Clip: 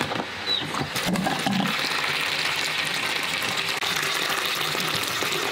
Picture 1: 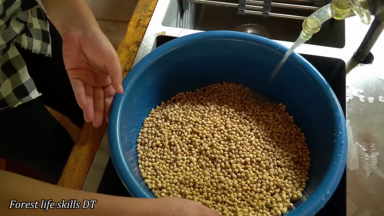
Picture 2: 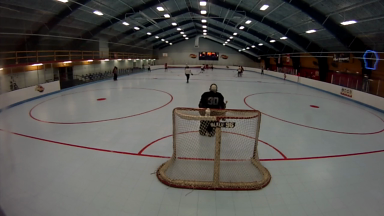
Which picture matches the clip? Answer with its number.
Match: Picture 1